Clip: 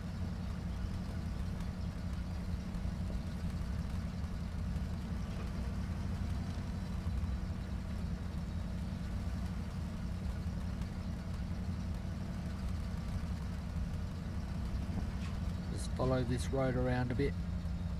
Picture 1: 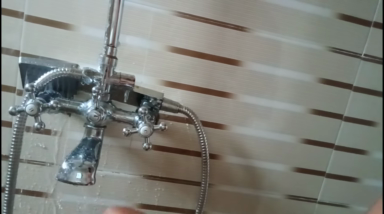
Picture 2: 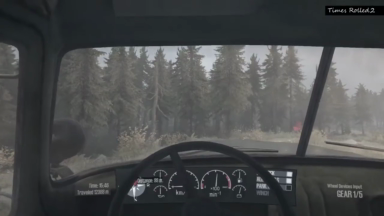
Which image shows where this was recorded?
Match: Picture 2